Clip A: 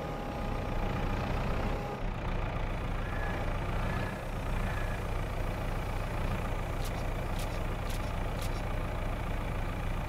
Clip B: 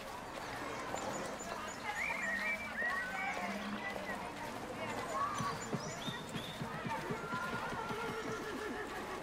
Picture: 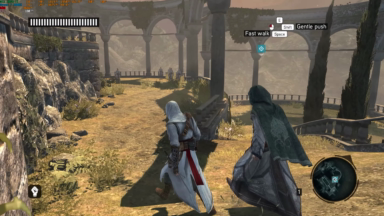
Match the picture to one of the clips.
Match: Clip B